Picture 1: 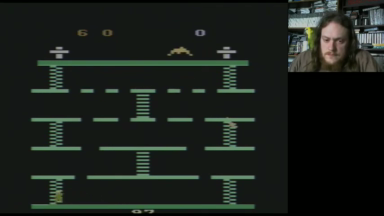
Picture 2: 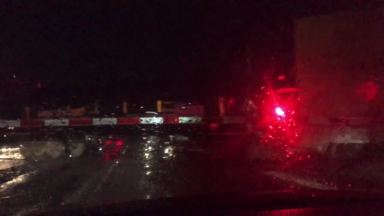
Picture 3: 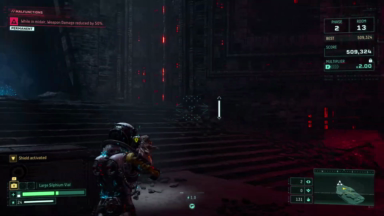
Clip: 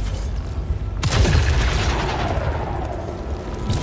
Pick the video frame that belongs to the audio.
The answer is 3